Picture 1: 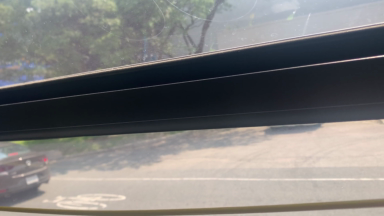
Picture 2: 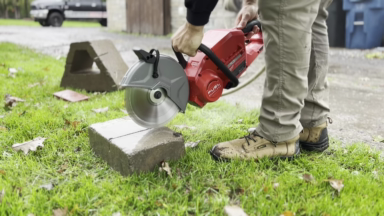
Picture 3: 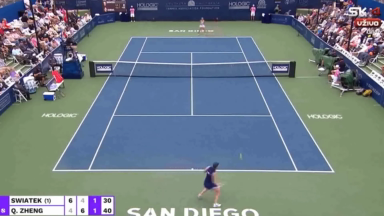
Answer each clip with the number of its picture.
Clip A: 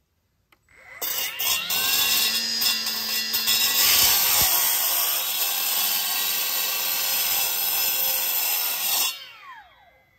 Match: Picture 2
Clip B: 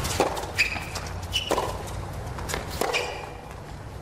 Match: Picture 3